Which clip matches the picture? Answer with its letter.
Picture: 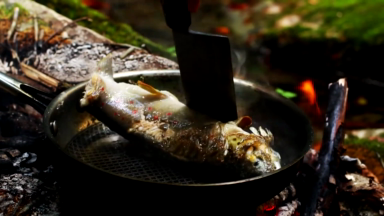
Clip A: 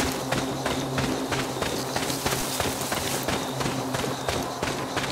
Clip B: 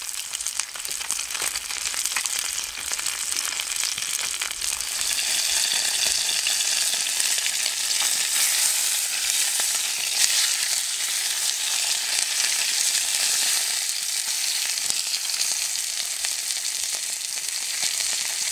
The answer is B